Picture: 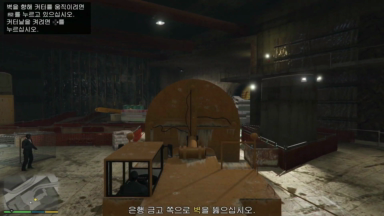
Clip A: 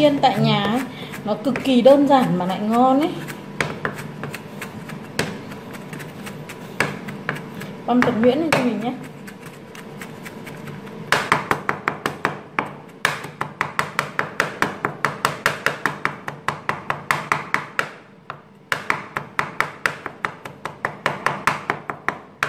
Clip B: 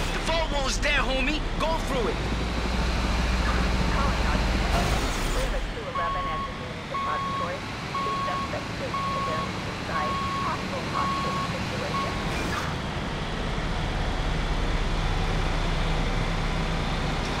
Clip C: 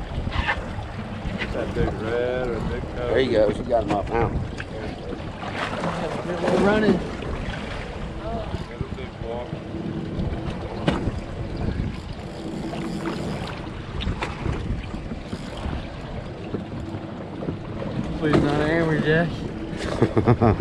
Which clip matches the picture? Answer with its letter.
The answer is B